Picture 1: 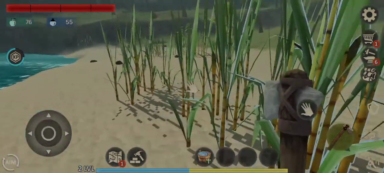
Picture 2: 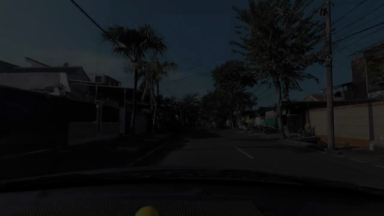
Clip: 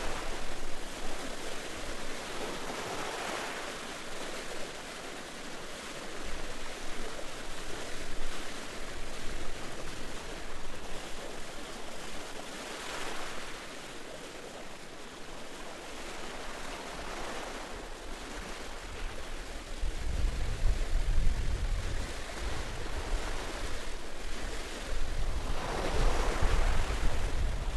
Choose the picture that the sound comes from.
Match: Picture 1